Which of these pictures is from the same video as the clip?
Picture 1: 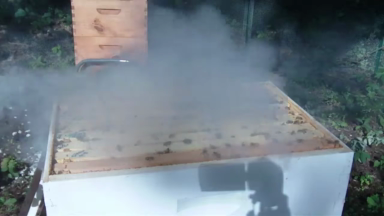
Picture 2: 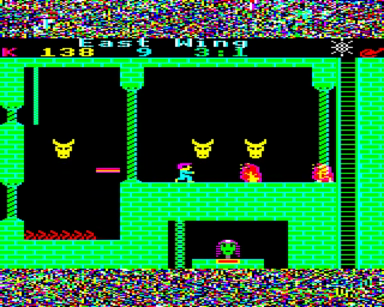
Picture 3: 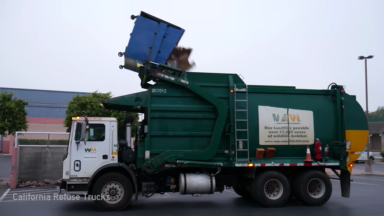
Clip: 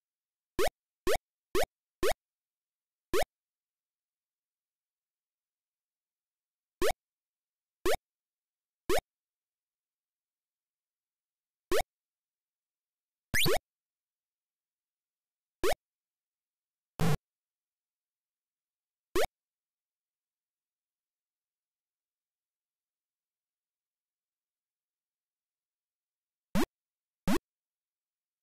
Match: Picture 2